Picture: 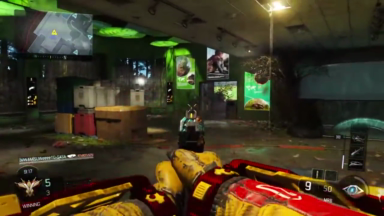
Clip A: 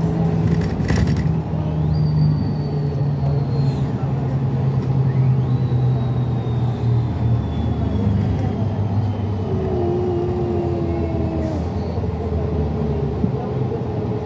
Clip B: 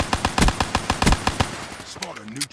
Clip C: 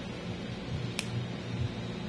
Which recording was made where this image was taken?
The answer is B